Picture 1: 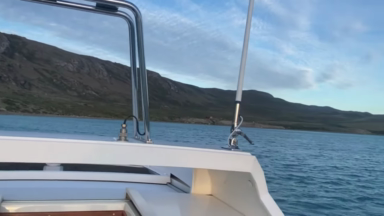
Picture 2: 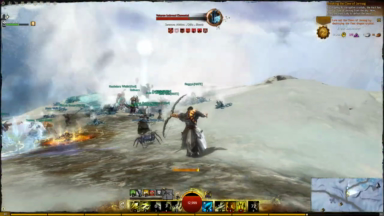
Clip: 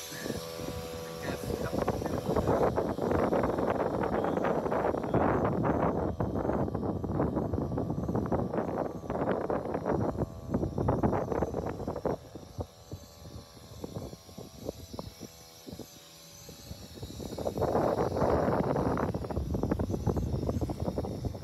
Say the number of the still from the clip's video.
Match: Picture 1